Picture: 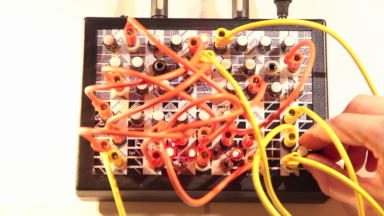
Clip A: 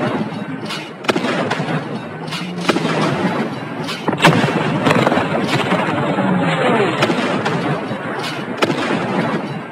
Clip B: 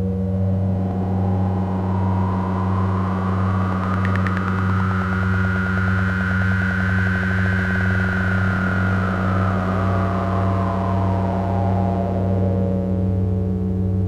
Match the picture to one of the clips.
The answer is B